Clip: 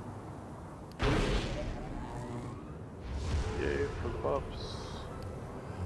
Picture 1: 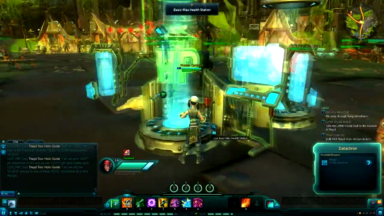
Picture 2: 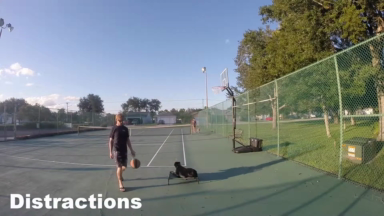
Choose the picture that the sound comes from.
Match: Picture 1